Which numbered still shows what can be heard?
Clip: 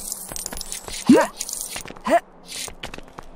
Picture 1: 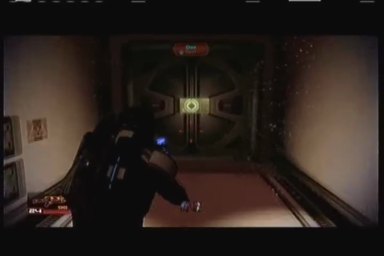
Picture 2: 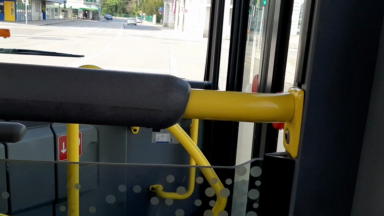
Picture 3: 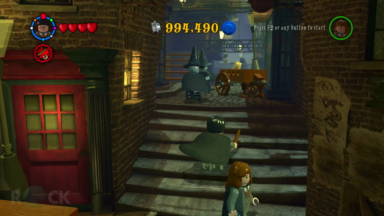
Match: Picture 3